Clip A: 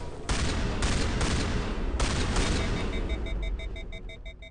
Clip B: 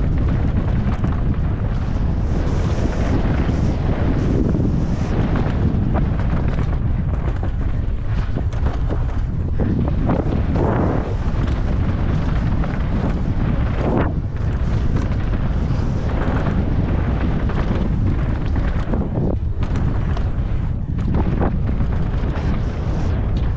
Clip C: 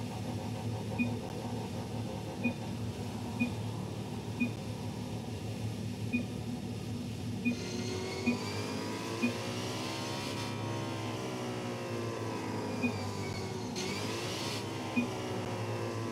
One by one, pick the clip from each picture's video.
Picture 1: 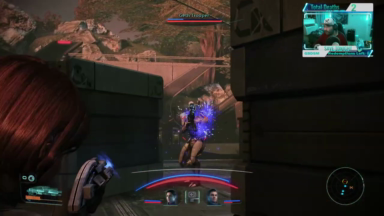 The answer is A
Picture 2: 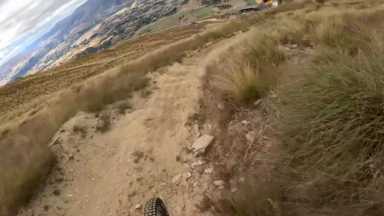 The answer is B